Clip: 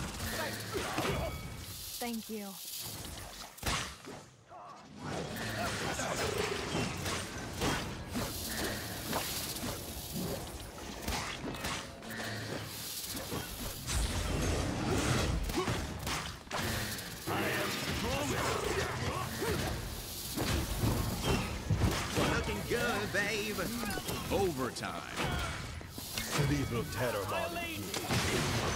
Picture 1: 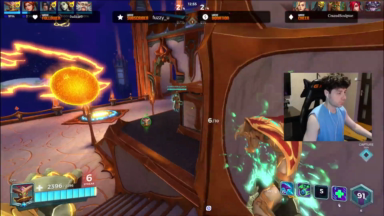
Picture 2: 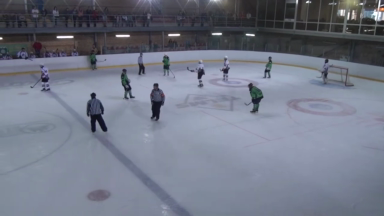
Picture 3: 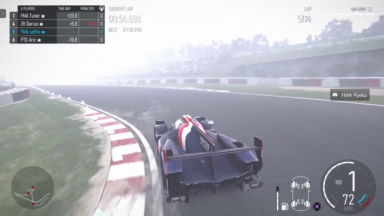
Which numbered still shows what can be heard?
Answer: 1